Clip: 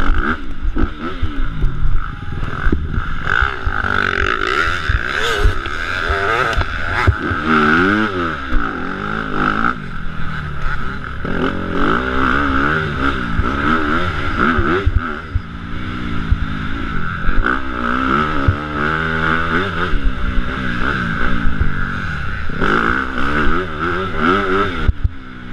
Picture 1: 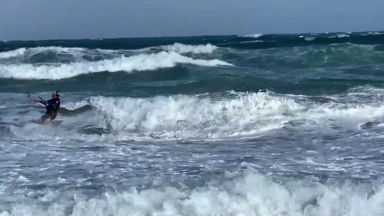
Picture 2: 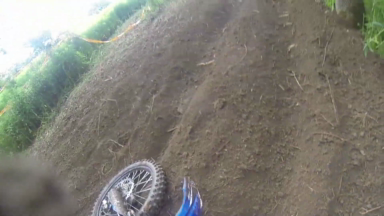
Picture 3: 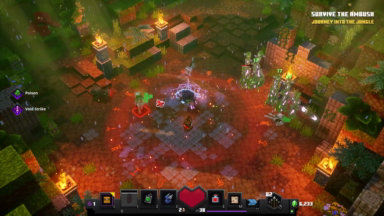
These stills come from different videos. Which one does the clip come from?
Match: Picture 2